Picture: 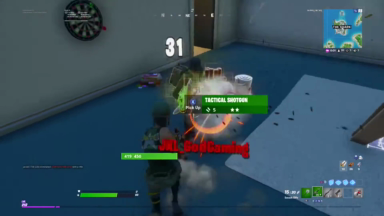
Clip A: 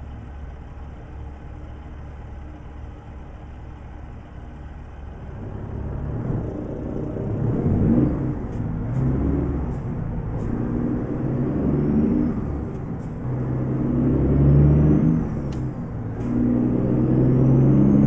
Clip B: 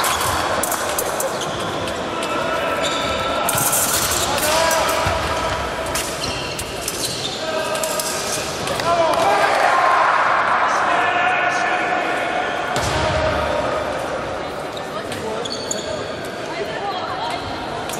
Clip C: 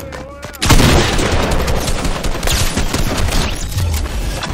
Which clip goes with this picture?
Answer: C